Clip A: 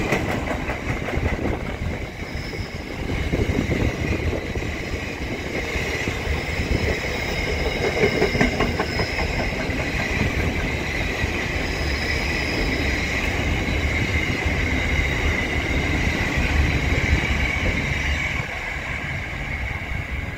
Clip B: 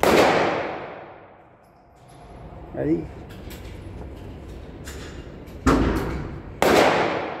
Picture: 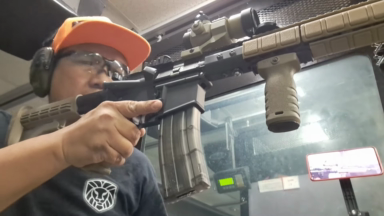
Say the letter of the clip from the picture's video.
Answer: B